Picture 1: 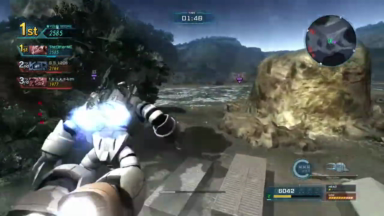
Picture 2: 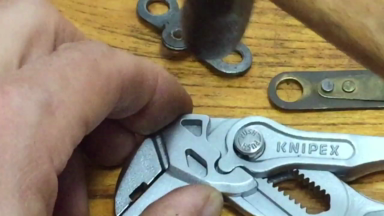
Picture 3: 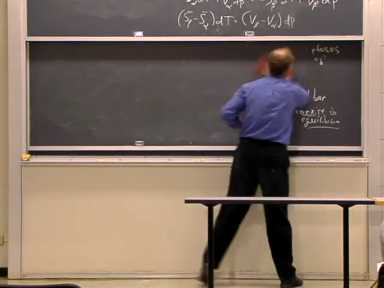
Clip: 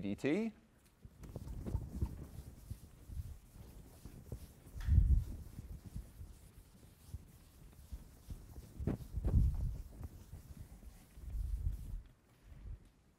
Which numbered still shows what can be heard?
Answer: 3